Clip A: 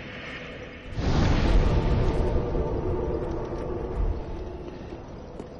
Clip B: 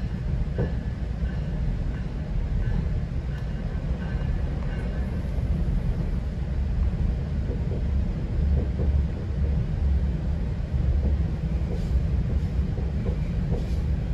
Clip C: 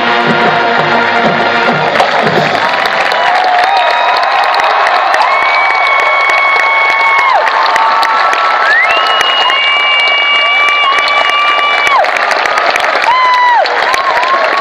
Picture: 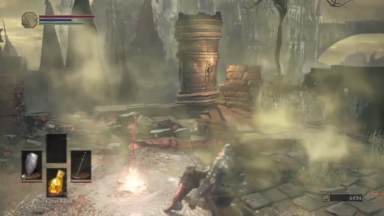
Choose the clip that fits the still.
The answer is A